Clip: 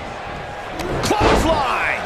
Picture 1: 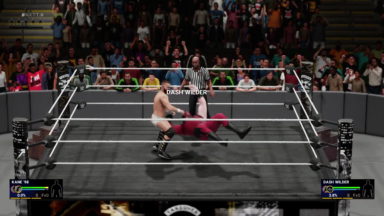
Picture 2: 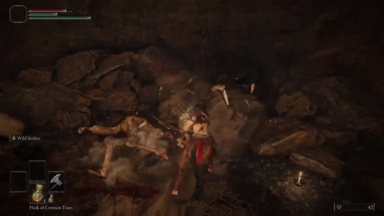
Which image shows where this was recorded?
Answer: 1